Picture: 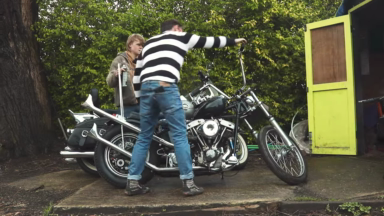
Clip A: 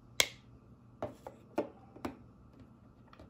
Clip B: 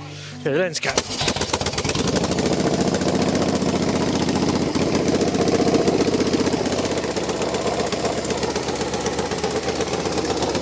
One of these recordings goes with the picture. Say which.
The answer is B